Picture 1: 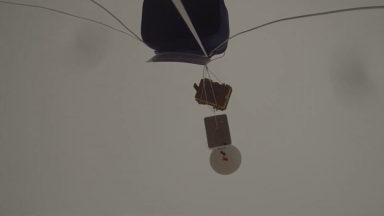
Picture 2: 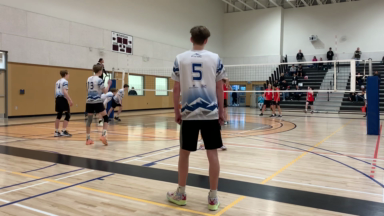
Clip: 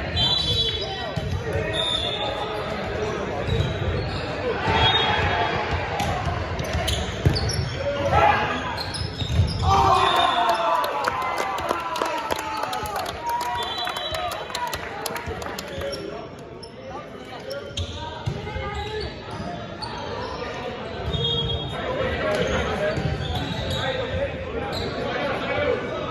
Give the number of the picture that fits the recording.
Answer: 2